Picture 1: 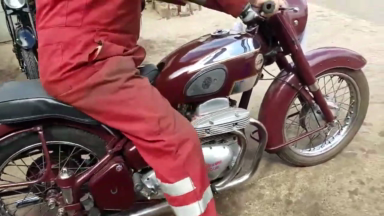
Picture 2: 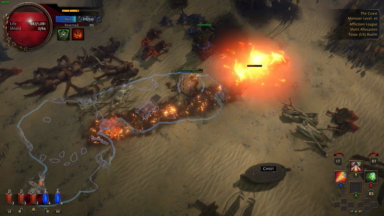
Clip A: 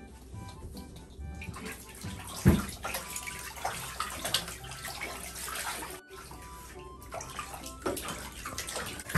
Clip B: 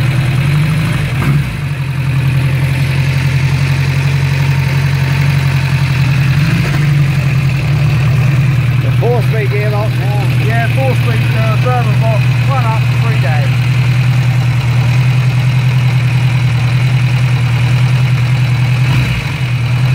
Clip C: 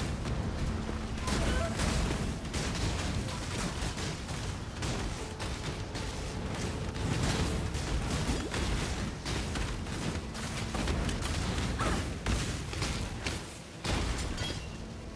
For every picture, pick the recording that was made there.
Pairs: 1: B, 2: C